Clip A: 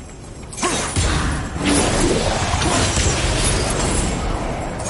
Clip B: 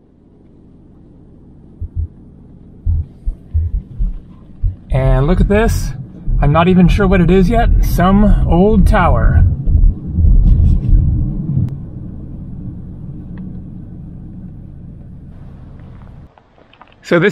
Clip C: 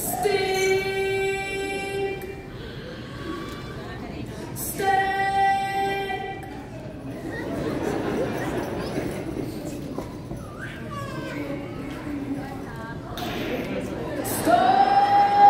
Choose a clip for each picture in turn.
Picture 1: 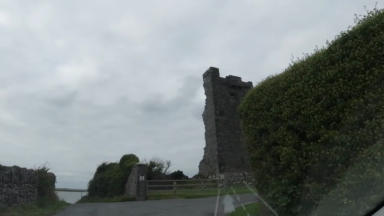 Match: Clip B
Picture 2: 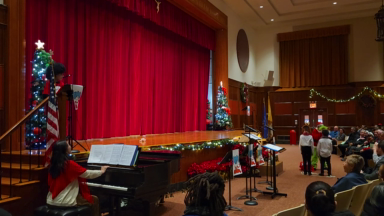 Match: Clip C